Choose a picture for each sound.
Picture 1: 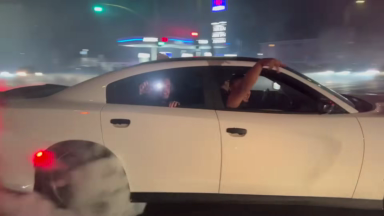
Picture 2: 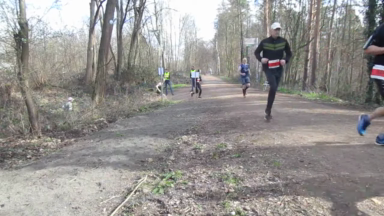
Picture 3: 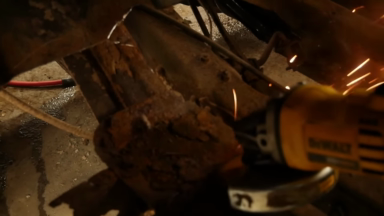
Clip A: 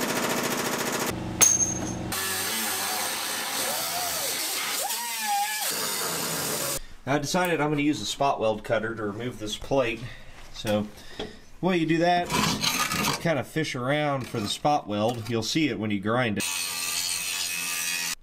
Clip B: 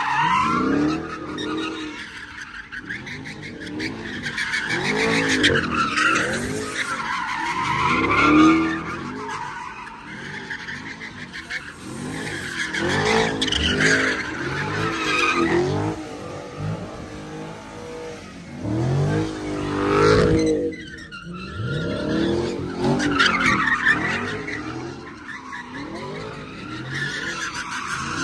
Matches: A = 3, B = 1